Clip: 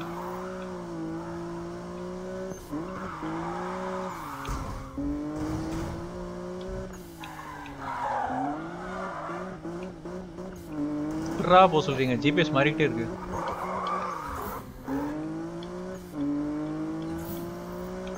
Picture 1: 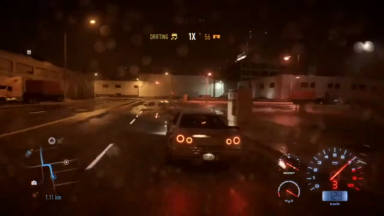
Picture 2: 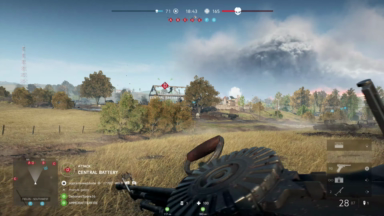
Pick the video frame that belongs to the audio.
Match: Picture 1